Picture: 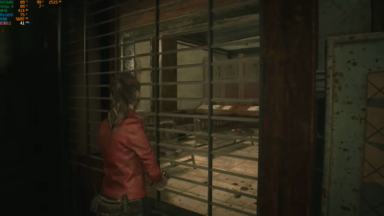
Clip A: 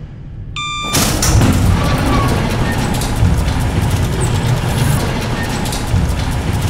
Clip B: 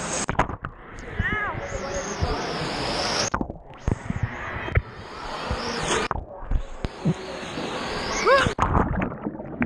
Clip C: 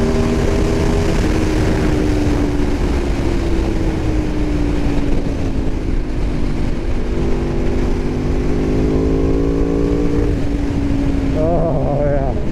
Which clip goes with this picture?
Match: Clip A